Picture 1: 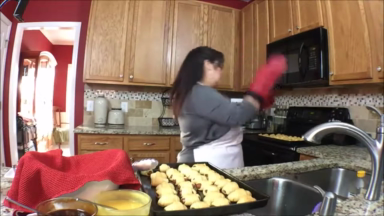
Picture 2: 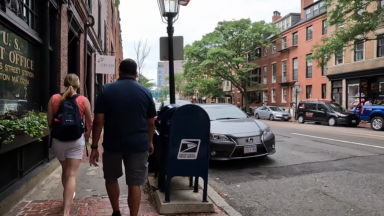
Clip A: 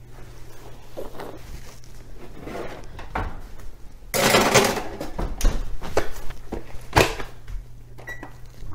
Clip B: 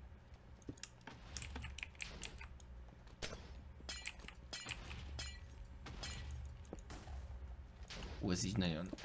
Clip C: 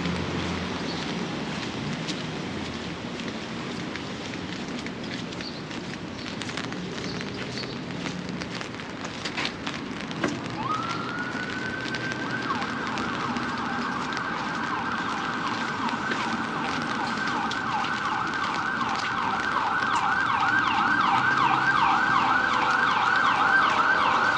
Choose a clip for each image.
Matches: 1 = A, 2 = C